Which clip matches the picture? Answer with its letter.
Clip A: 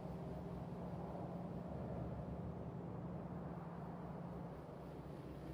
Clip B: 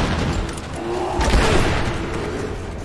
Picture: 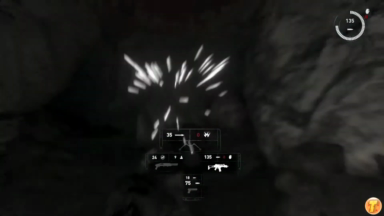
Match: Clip B